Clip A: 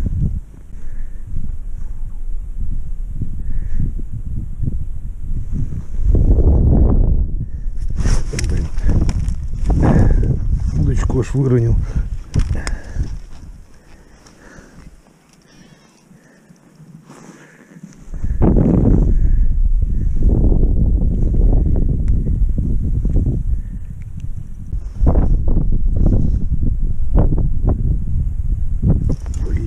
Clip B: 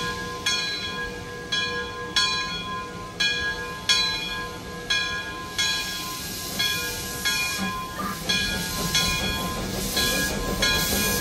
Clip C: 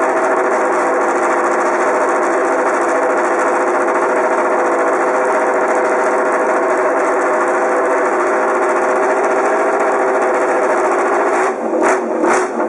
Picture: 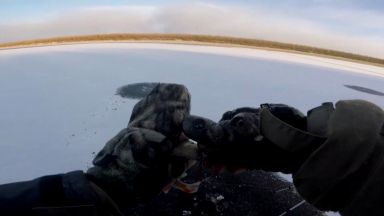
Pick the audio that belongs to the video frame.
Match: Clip A